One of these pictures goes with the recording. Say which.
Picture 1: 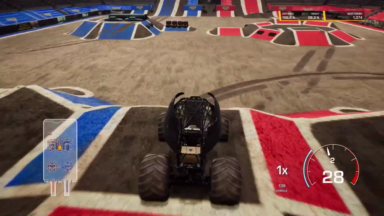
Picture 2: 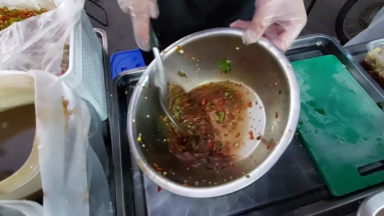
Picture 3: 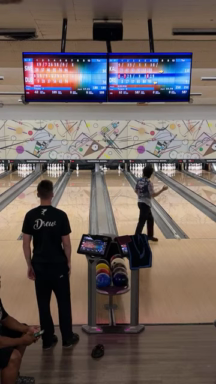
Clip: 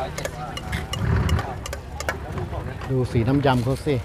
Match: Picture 2